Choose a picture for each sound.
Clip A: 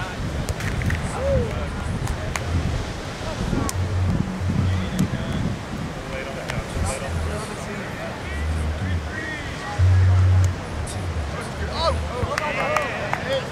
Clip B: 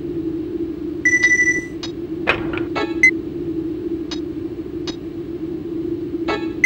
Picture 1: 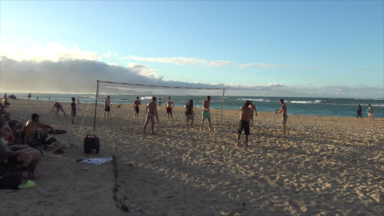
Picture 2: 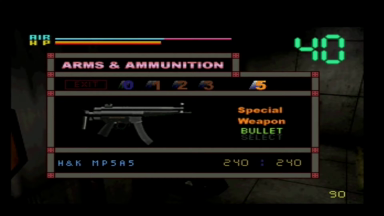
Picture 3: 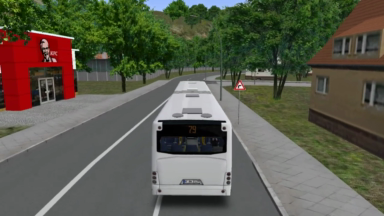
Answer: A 1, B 2